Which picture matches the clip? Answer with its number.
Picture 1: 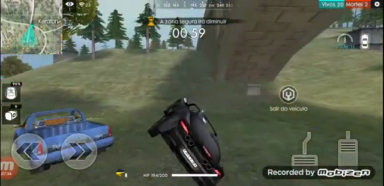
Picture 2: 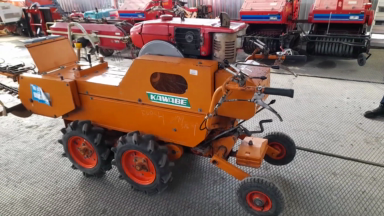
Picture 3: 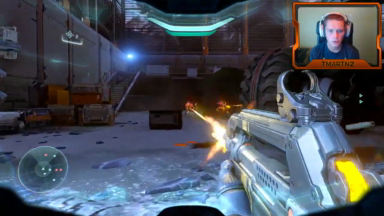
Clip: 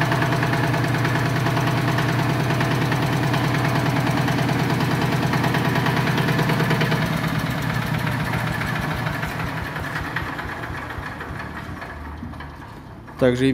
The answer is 2